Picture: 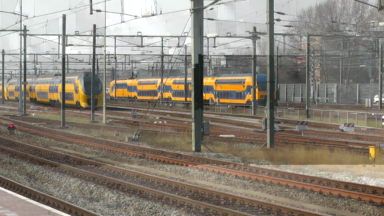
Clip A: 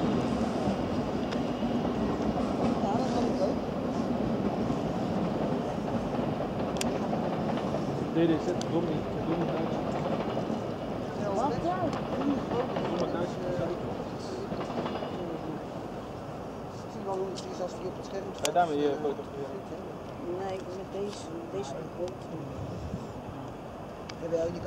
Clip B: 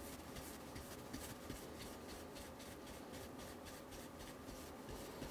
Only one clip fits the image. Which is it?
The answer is A